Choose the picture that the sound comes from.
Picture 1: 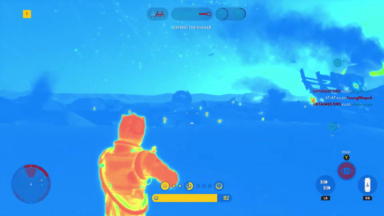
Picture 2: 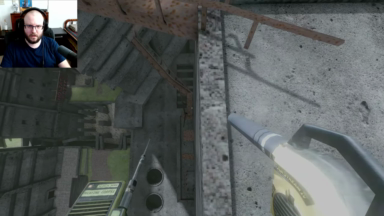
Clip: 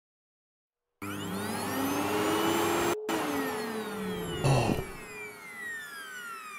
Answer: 2